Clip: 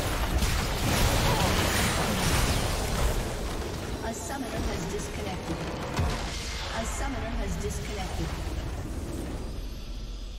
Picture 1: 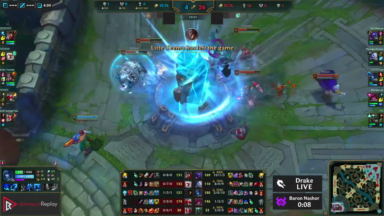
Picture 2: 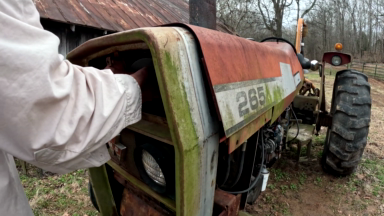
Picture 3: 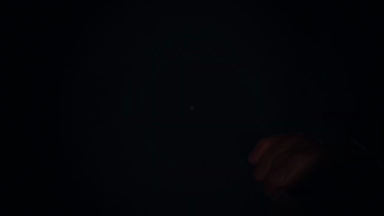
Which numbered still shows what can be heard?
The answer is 1